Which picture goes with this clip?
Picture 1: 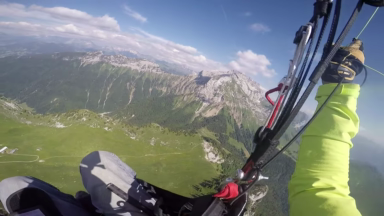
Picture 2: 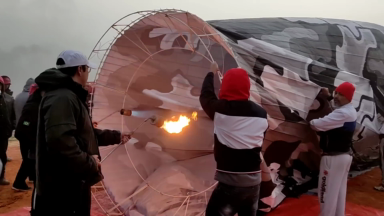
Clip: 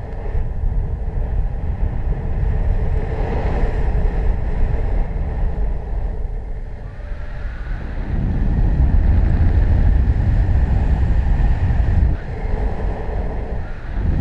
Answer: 1